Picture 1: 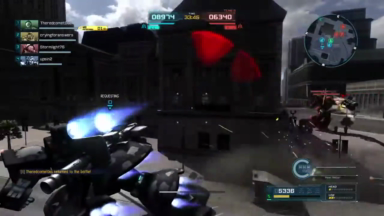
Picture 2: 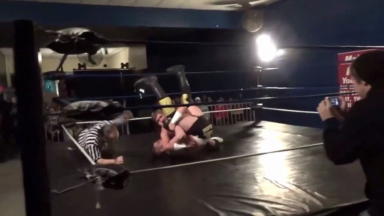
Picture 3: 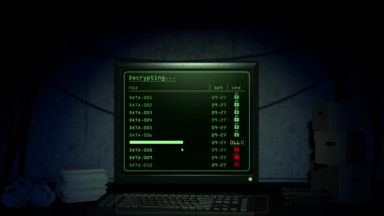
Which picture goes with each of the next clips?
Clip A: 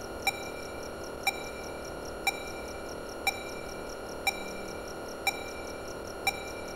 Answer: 3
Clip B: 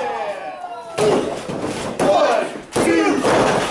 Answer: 2